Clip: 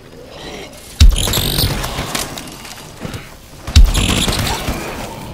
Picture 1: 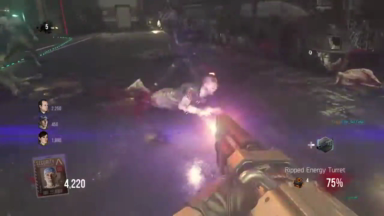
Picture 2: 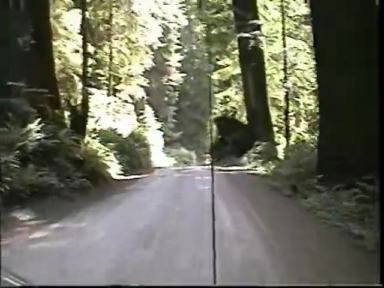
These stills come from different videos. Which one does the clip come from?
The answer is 1